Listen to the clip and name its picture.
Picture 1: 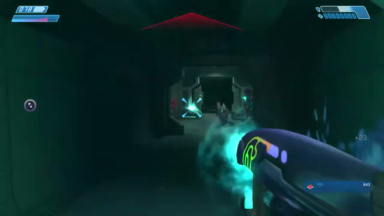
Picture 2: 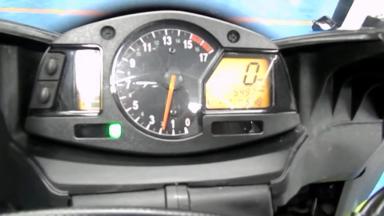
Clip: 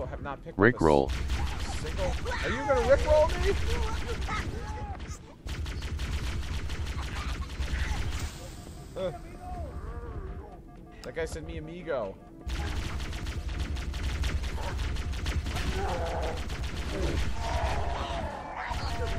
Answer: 1